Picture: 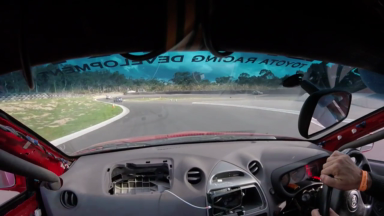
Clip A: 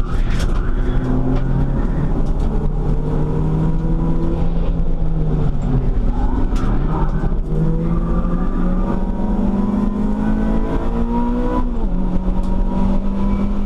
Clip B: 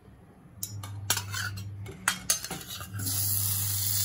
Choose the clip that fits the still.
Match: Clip A